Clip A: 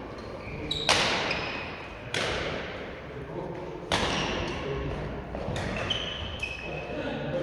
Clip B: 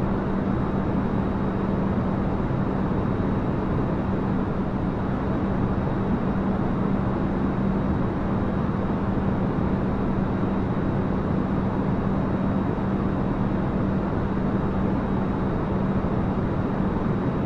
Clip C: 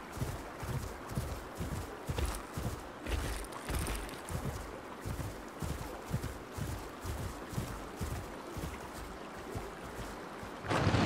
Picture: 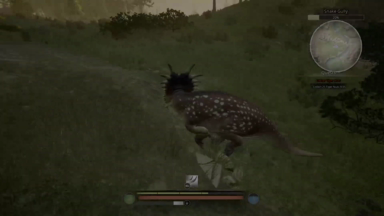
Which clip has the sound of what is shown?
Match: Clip C